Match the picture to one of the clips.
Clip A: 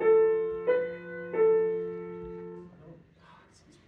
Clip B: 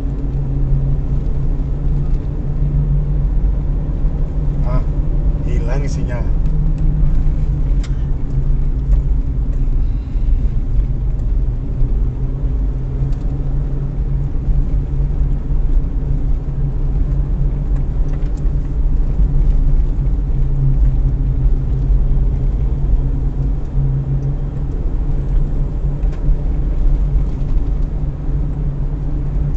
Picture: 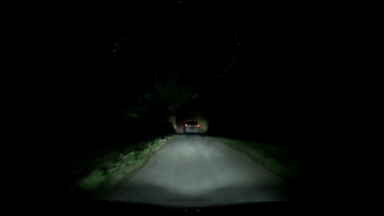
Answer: B